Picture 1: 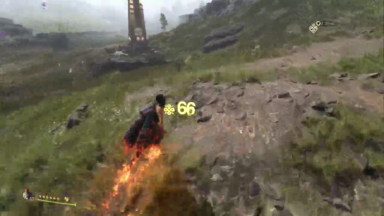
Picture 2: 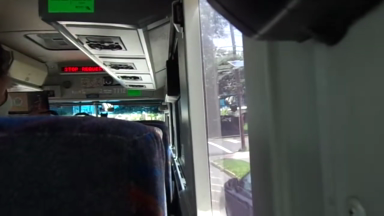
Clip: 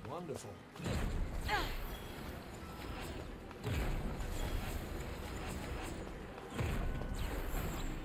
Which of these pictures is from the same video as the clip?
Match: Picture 1